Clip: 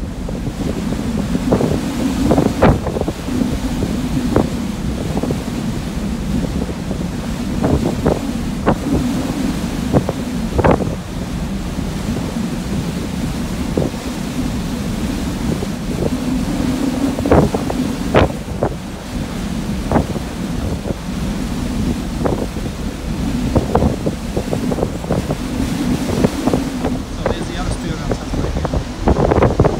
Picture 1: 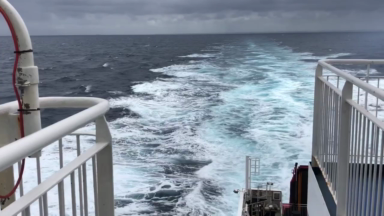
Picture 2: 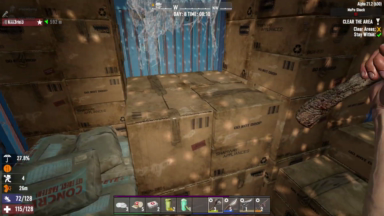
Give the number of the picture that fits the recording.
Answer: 1